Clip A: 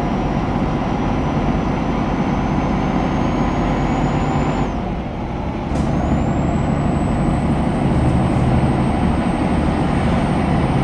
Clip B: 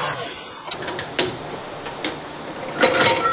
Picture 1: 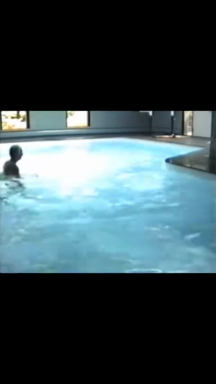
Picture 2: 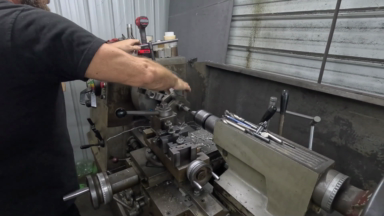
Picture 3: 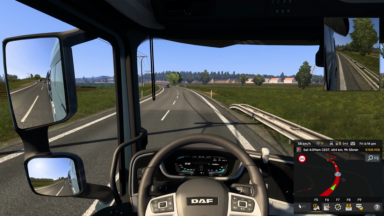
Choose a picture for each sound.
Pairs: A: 3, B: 2